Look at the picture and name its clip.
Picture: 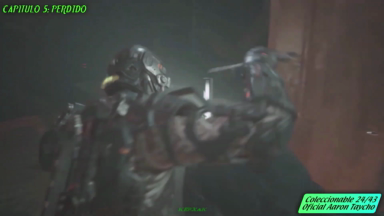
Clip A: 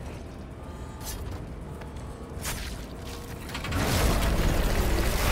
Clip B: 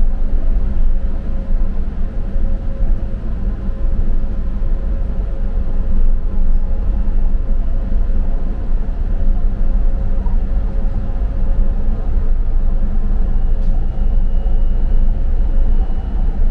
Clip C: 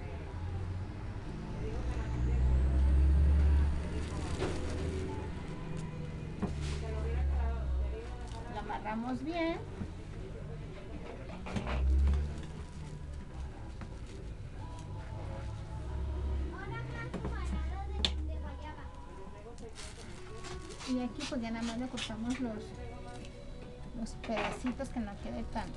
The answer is A